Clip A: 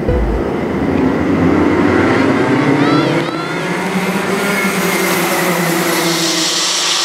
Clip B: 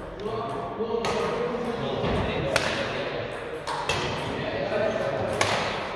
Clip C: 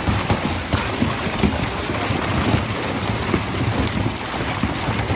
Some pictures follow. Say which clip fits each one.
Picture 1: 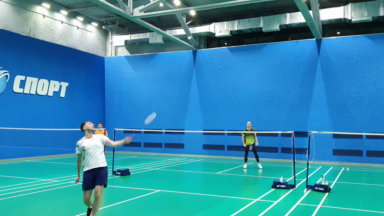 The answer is B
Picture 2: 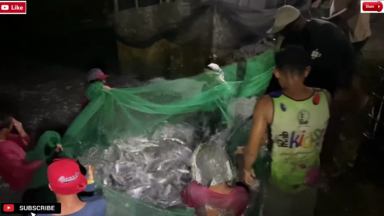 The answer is C